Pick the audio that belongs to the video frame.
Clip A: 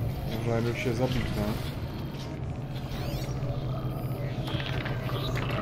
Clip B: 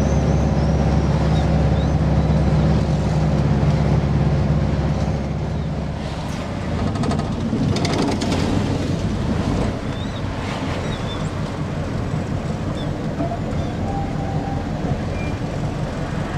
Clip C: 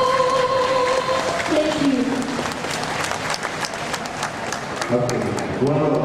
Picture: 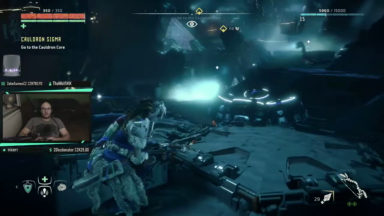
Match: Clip A